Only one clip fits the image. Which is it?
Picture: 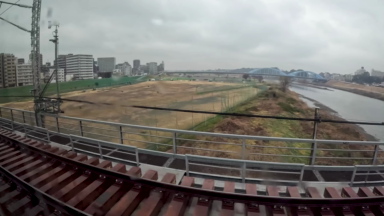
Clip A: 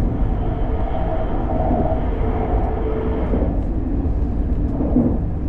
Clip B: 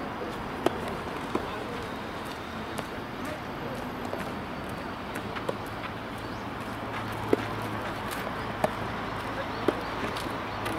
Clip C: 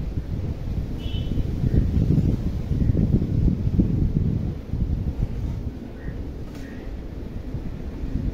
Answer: A